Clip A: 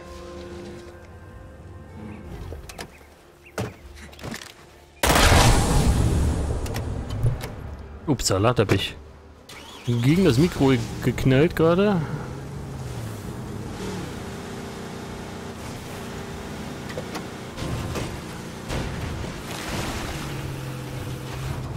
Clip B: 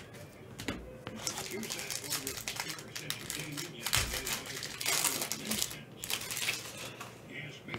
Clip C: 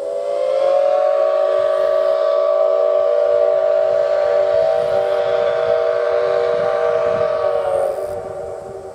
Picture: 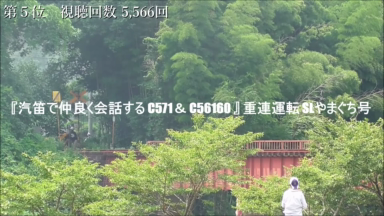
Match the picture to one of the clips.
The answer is C